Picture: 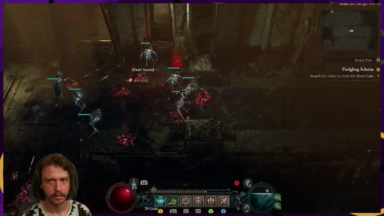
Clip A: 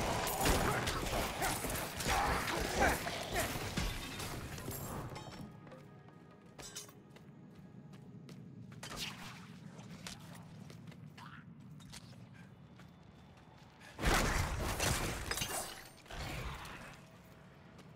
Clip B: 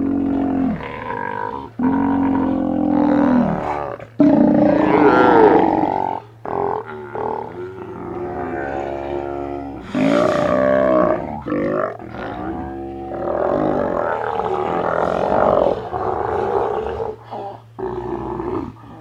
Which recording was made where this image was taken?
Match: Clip A